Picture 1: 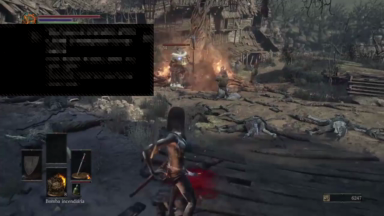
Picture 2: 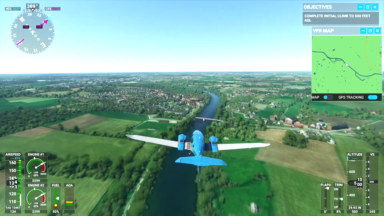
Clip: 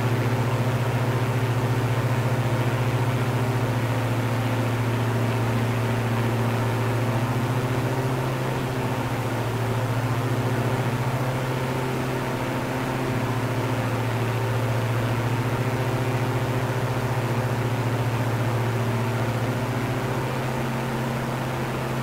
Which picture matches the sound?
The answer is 2